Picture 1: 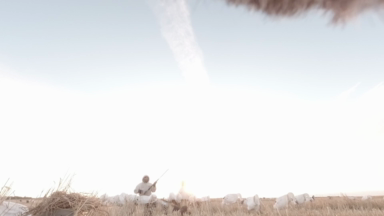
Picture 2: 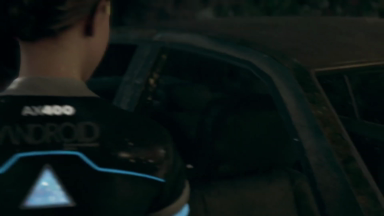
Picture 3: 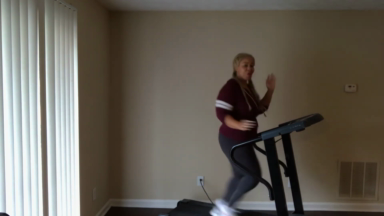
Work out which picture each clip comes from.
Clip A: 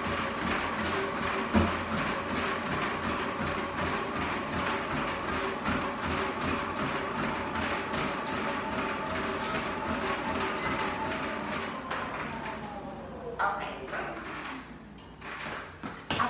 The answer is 3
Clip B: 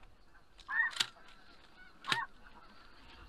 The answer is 1